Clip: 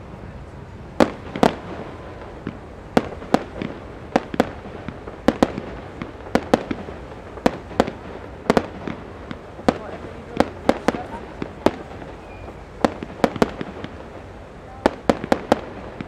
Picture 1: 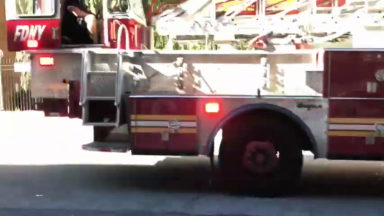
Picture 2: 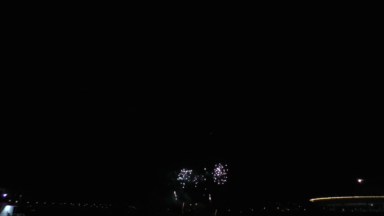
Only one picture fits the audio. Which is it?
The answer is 2